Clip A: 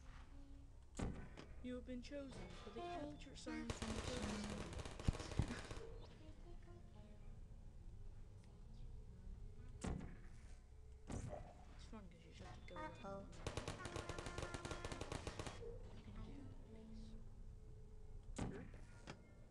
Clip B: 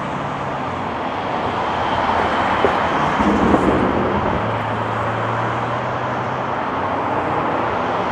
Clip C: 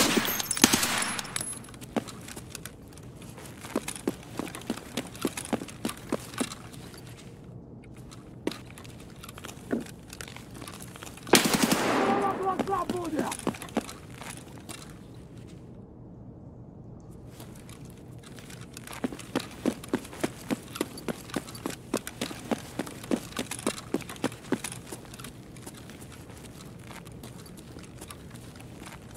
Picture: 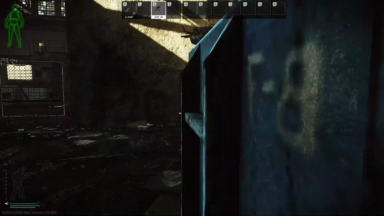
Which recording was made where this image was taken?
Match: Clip C